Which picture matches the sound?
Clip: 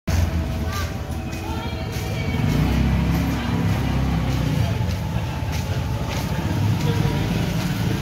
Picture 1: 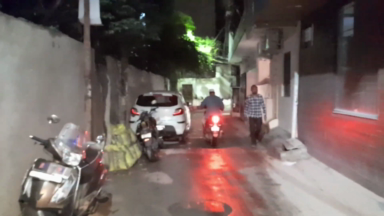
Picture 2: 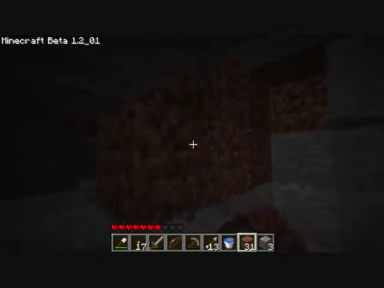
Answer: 1